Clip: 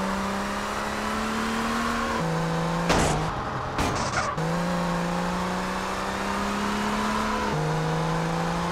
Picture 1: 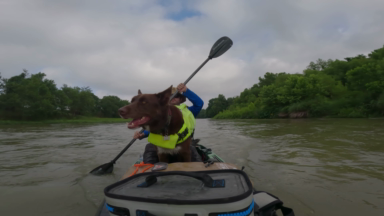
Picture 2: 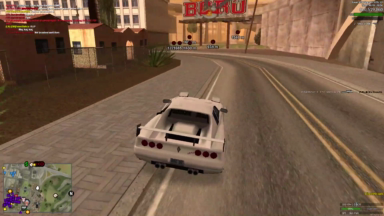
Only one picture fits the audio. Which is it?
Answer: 2